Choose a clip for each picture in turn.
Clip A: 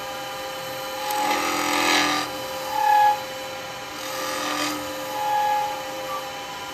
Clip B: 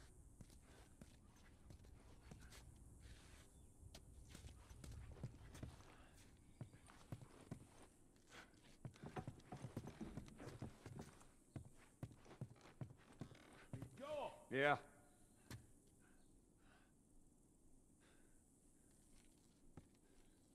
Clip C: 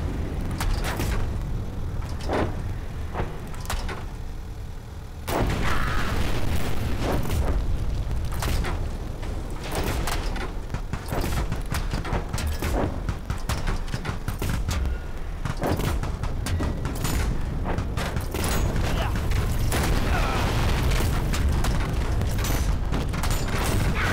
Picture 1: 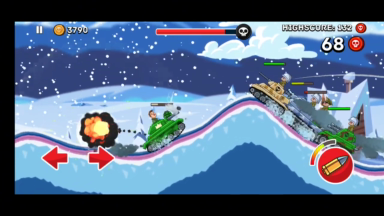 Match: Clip C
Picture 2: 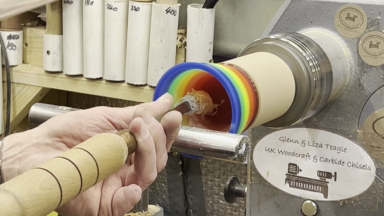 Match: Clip A